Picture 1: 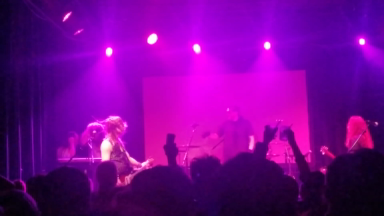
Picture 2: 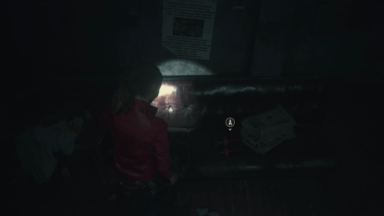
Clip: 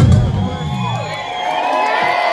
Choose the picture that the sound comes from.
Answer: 1